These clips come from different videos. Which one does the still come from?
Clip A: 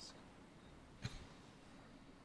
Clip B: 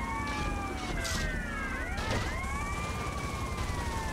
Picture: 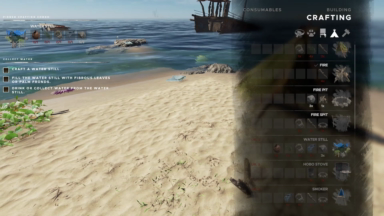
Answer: A